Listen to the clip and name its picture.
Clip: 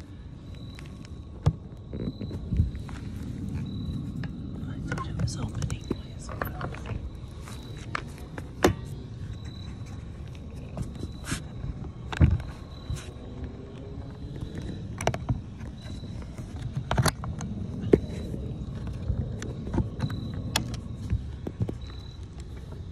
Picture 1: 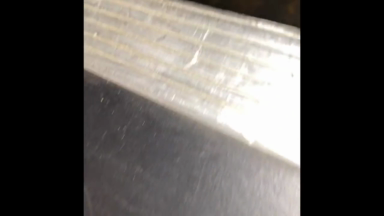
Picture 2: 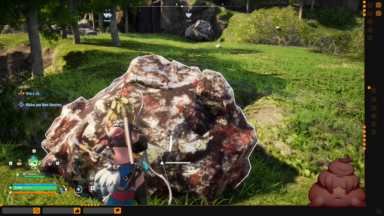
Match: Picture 1